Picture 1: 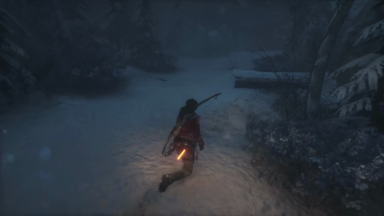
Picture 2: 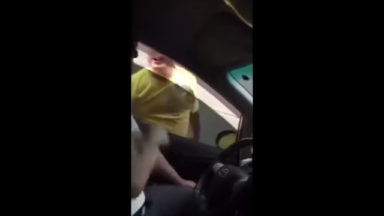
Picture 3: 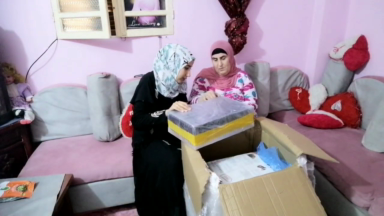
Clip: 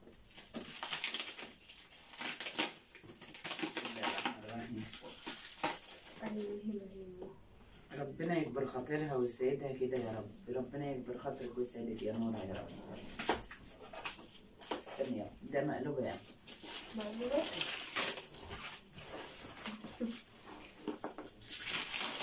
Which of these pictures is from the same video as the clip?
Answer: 3